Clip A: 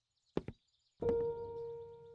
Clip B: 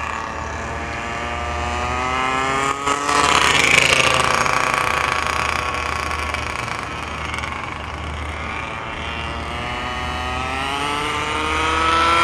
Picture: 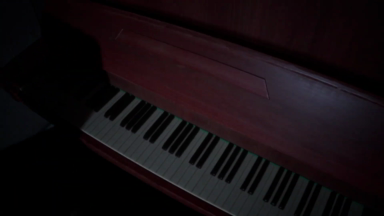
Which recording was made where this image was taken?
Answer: A